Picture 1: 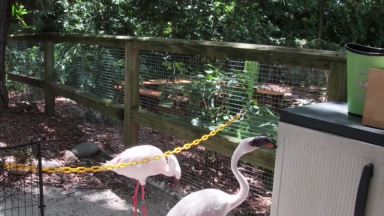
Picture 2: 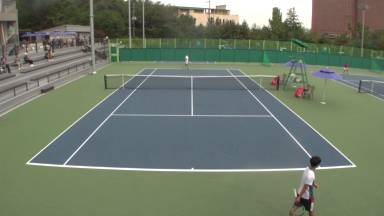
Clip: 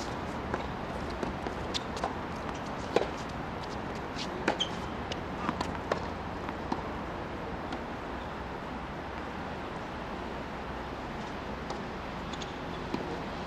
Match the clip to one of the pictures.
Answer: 2